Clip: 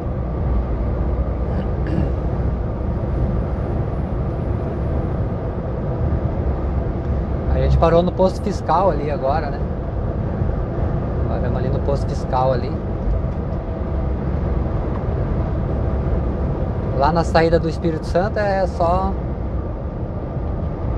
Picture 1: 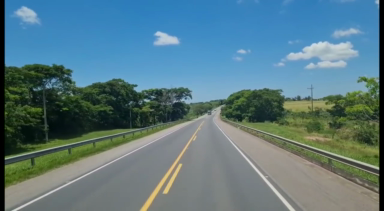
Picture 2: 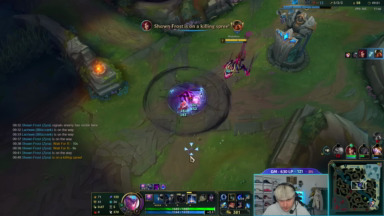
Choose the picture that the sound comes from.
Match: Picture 1